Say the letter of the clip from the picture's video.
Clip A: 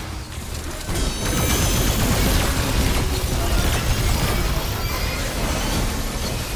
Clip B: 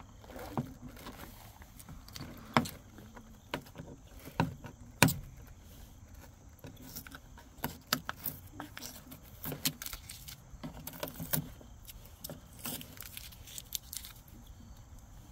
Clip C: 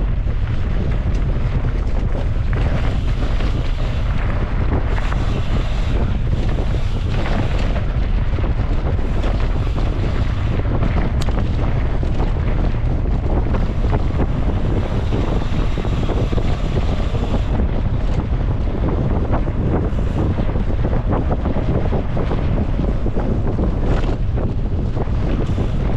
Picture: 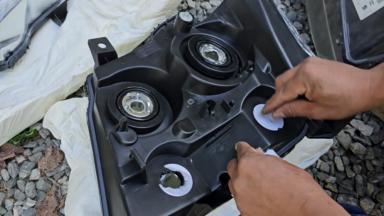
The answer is B